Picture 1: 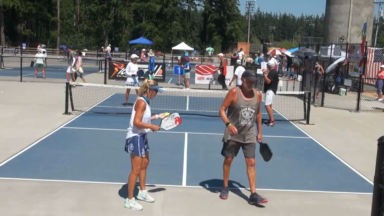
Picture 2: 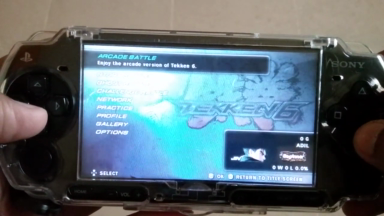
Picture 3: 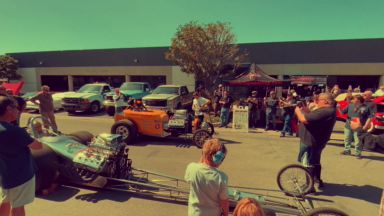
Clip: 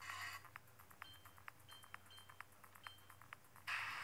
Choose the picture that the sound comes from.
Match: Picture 2